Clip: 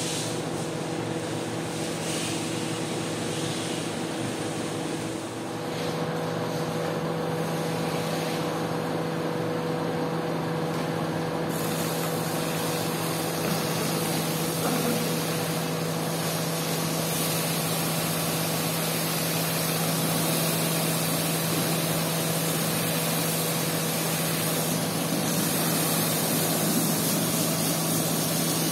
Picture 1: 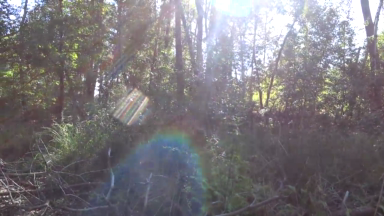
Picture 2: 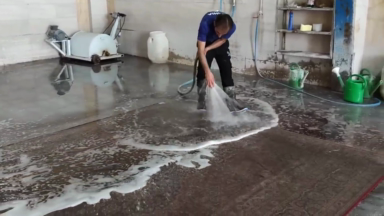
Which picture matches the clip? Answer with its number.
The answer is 2